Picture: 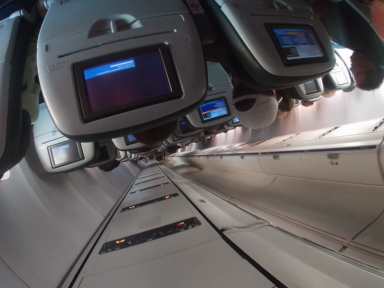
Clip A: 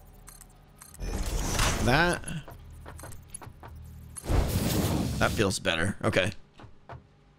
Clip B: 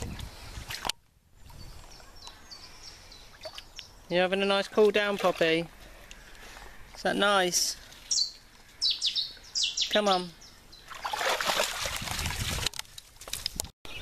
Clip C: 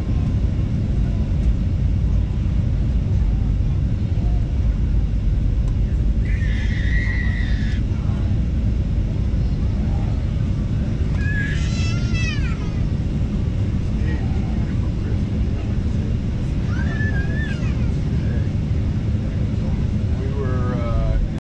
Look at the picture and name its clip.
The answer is C